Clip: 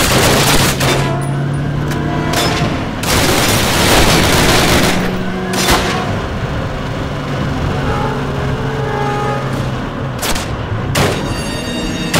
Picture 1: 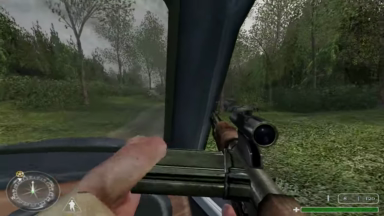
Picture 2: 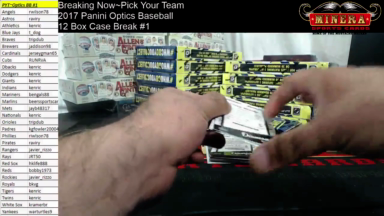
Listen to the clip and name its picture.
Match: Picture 1